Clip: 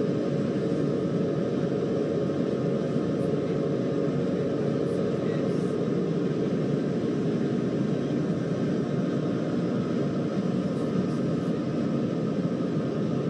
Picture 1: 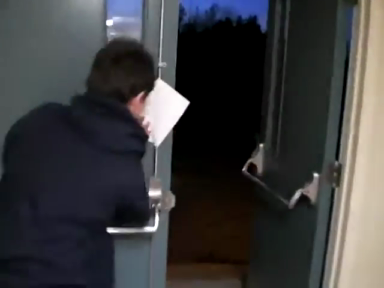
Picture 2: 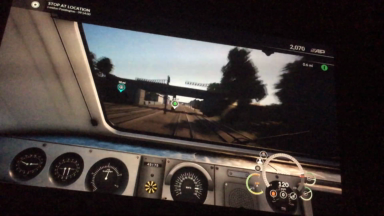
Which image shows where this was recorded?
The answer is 2